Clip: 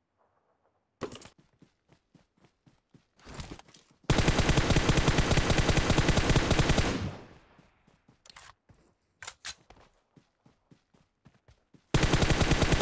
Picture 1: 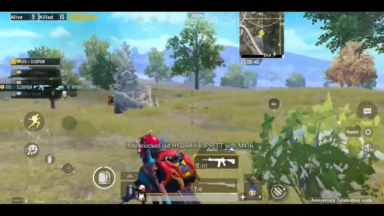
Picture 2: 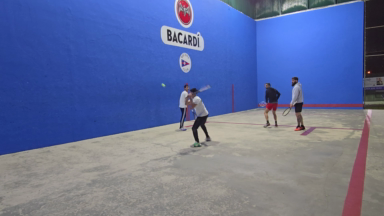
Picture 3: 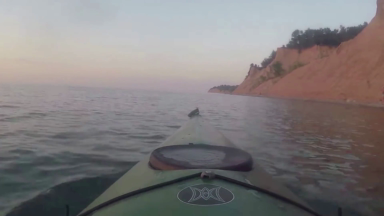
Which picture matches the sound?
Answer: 1